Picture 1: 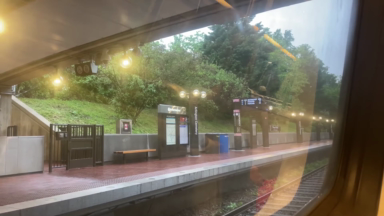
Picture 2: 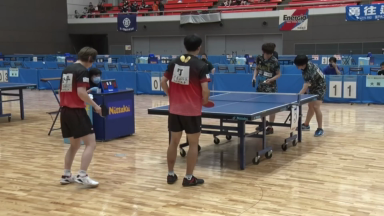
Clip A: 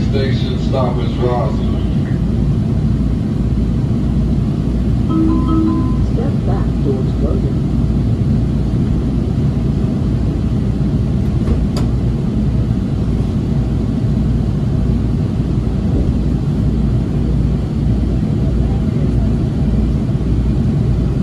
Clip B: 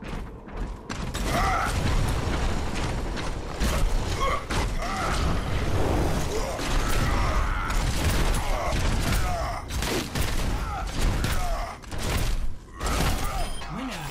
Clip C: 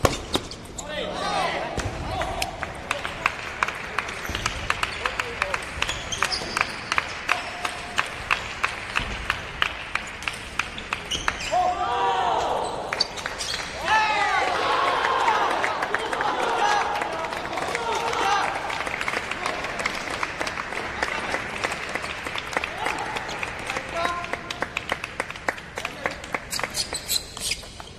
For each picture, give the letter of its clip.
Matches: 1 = A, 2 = C